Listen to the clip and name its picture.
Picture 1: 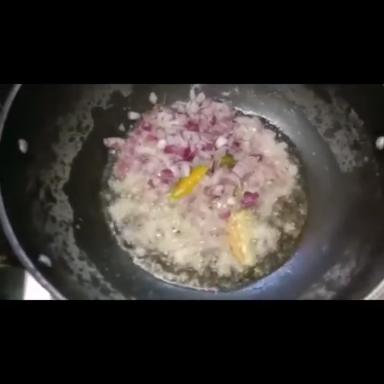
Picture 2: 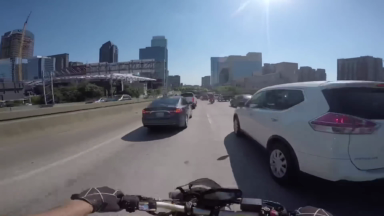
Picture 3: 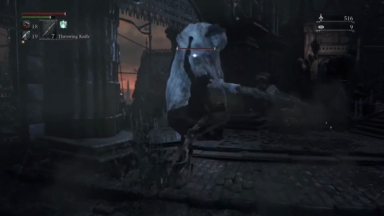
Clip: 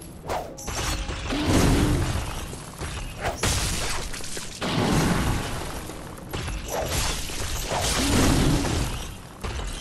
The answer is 3